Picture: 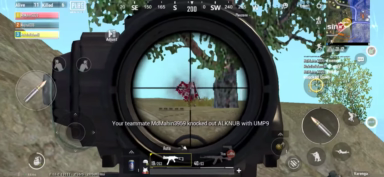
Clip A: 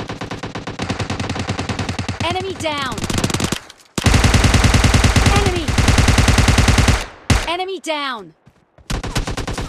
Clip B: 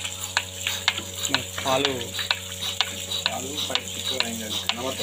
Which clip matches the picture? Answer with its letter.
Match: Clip A